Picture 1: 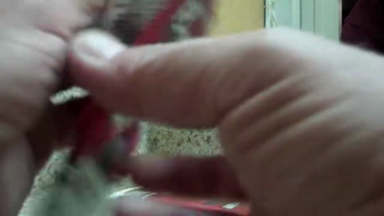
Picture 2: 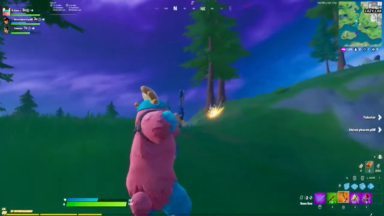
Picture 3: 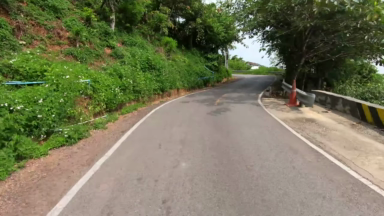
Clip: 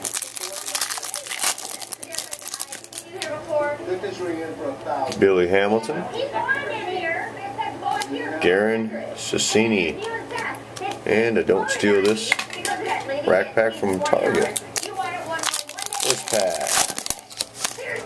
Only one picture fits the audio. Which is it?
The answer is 1